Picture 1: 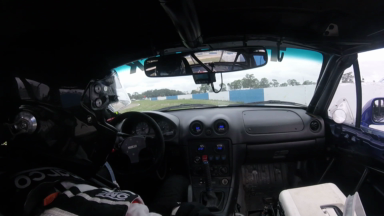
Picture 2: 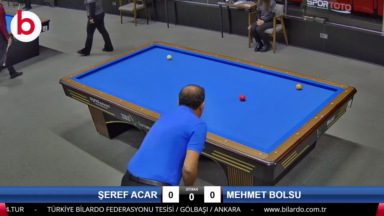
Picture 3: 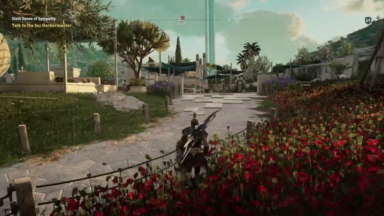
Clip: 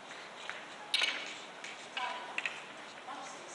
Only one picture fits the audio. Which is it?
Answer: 2